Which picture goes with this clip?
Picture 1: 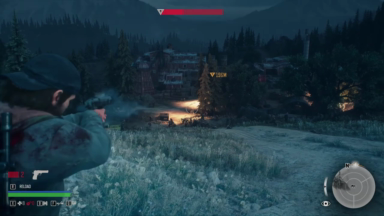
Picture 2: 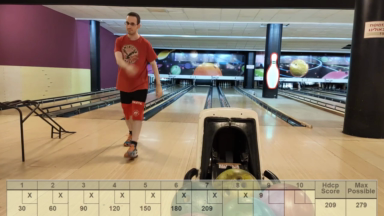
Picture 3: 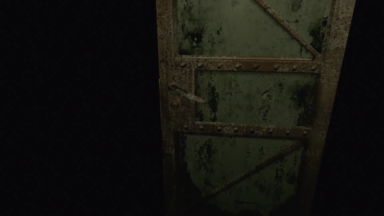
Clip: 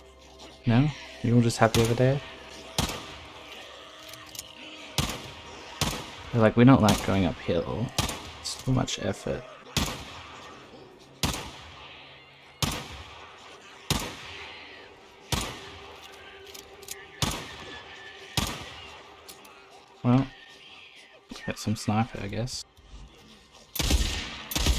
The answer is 1